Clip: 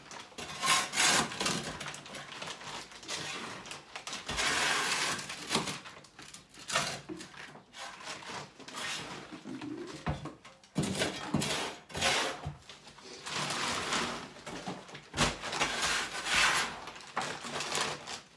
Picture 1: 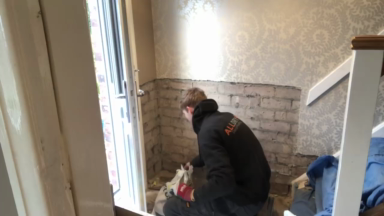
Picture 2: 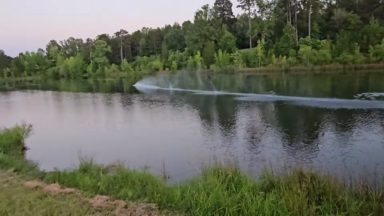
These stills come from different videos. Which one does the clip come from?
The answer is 1